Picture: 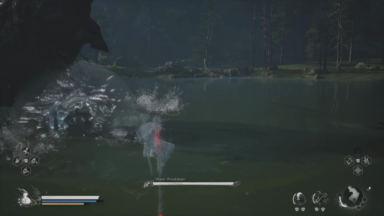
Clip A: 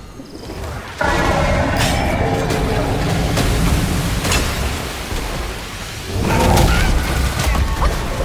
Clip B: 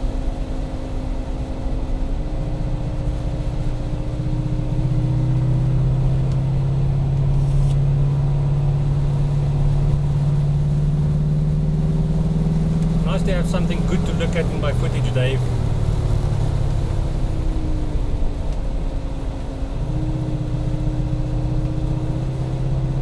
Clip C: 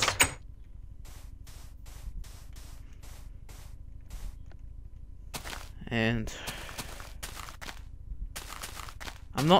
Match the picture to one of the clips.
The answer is A